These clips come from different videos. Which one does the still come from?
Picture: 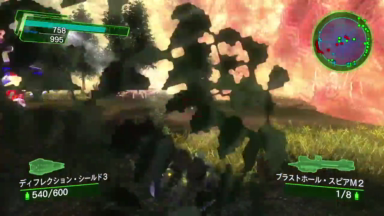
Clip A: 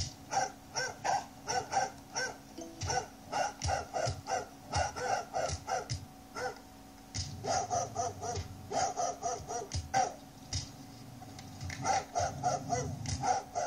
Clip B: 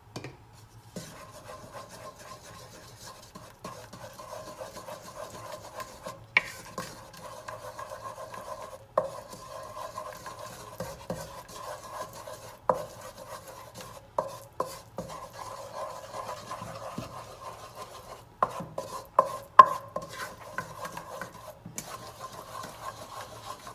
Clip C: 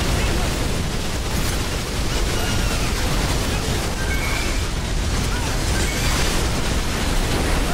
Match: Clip C